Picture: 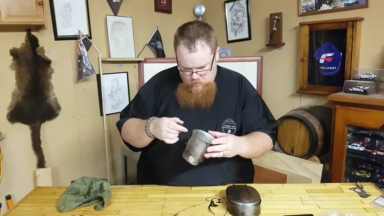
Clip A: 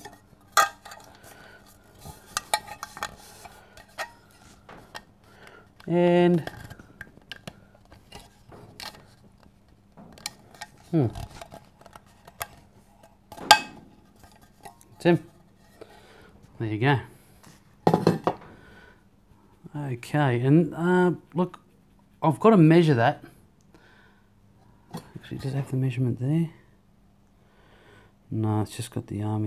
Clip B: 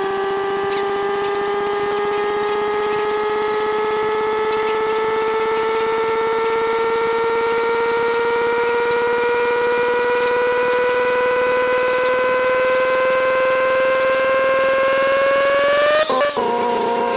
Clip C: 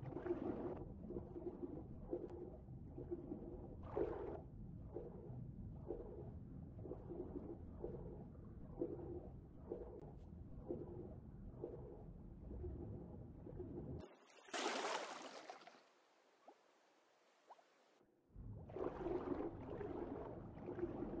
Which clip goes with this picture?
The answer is A